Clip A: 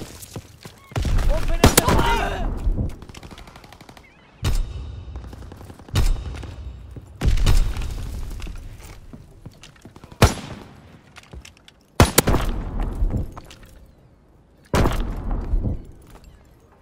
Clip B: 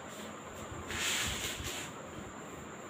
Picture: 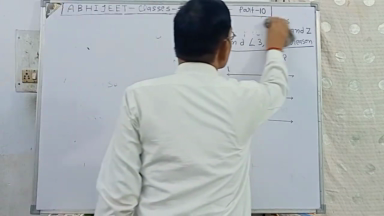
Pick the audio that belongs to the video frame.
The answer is B